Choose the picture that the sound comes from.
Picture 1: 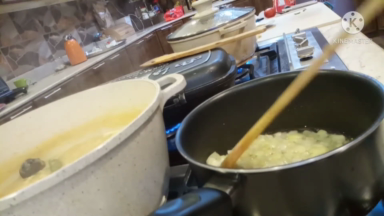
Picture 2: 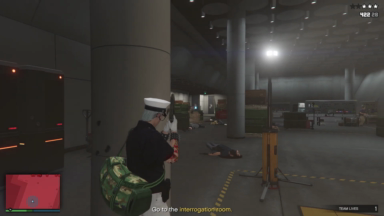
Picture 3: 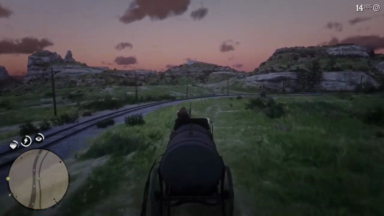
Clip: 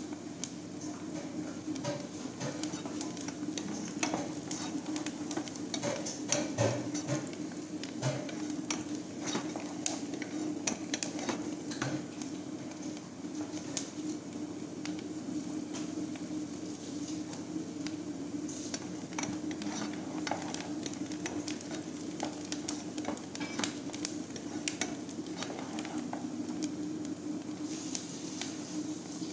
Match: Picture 1